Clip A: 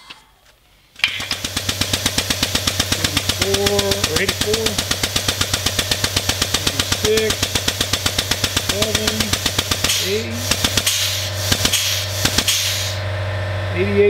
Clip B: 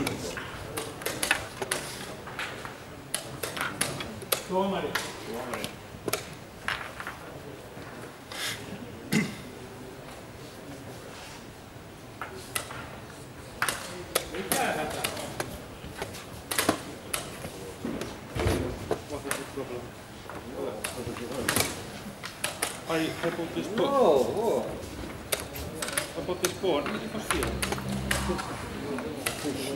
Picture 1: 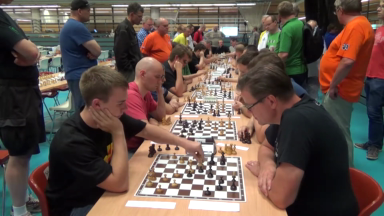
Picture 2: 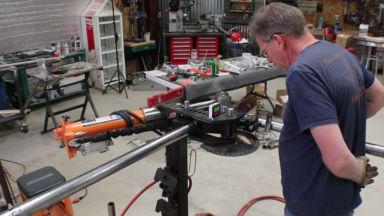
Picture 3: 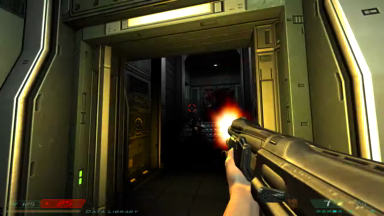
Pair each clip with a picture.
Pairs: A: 2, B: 1